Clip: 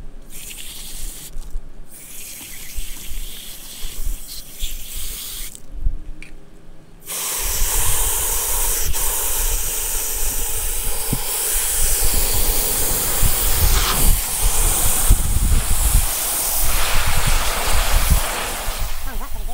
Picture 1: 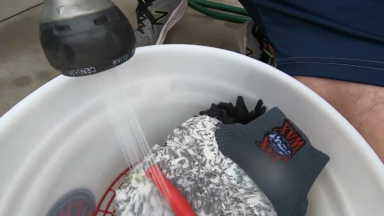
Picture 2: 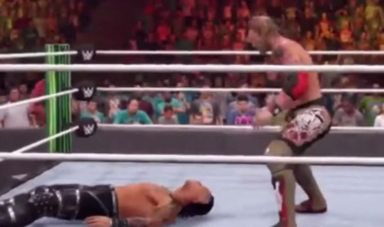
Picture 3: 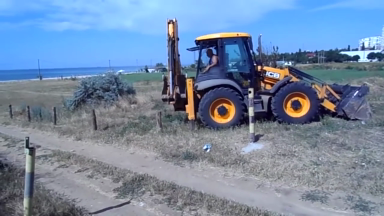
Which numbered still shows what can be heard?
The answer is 1